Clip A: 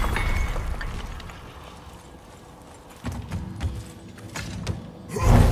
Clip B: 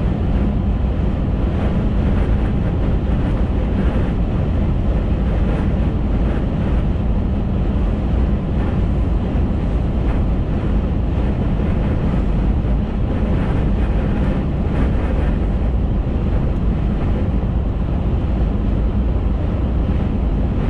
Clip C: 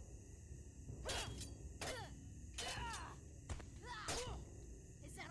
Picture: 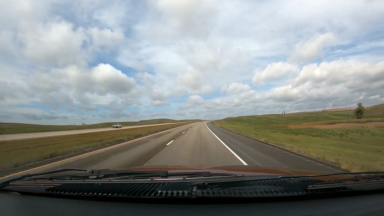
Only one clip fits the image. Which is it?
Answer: B